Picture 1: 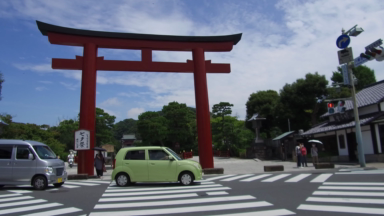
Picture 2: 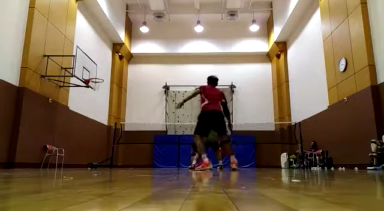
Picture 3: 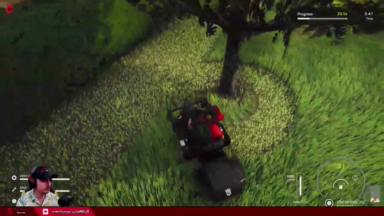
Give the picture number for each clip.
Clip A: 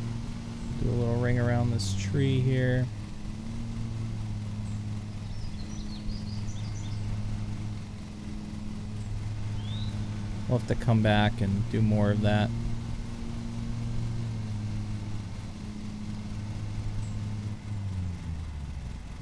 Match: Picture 3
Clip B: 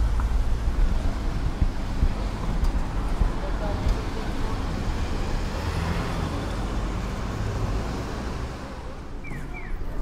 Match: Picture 1